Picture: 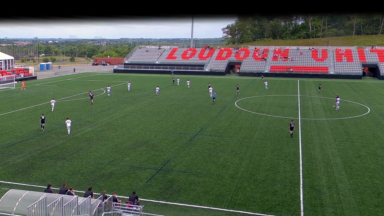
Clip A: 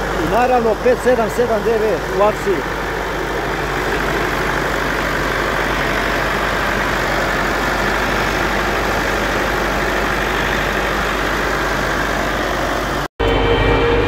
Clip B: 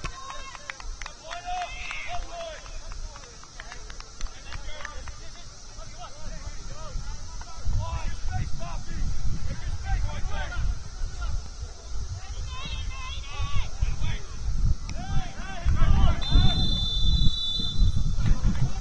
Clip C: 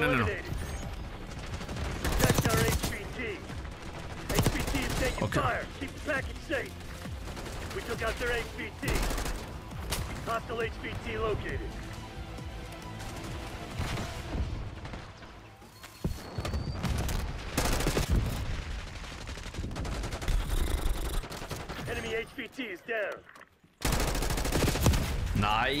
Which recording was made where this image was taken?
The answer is B